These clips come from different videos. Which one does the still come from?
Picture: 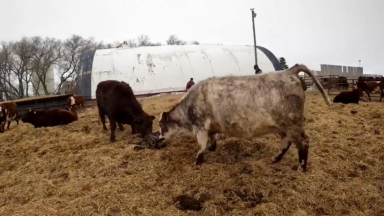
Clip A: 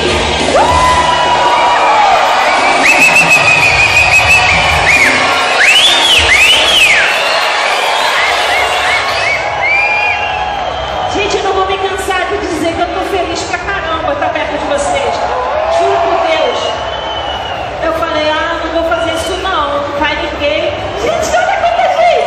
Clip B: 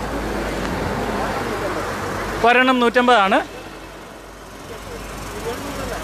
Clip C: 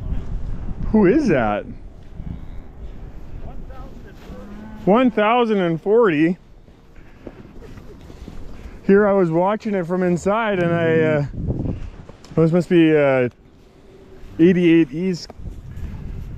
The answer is C